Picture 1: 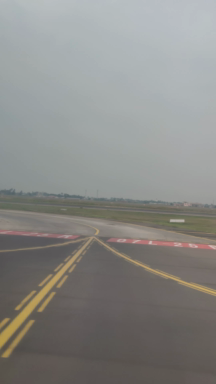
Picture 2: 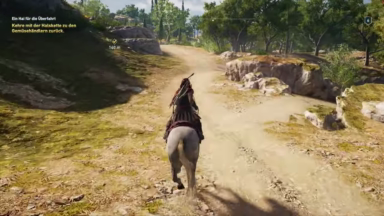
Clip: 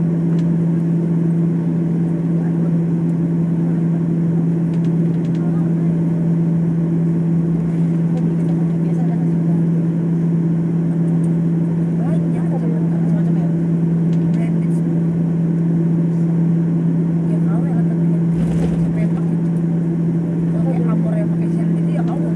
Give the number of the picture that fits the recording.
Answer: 1